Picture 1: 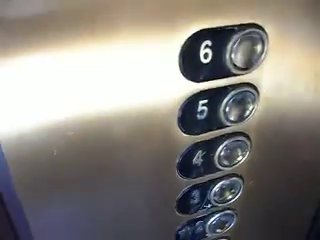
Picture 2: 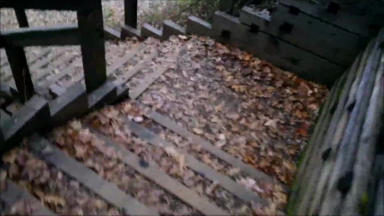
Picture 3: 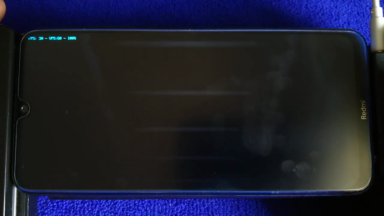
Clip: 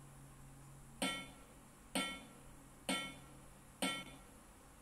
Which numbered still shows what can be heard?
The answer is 3